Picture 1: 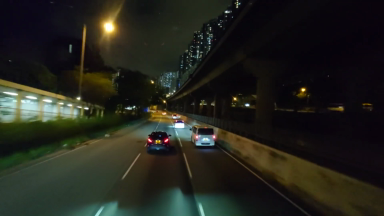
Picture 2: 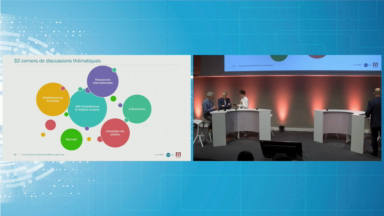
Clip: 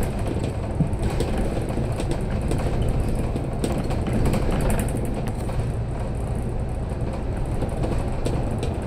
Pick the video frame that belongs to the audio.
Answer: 1